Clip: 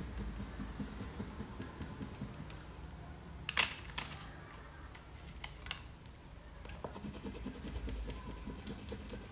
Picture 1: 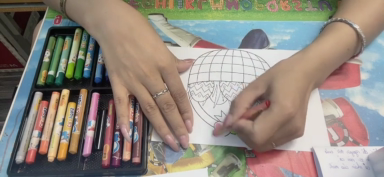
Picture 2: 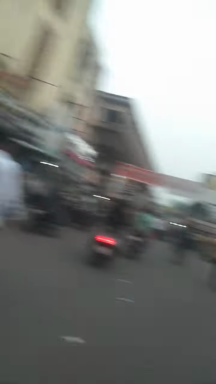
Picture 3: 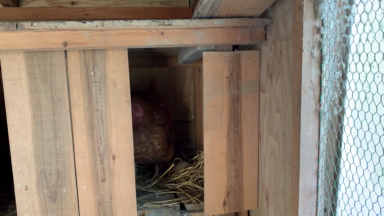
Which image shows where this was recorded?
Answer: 1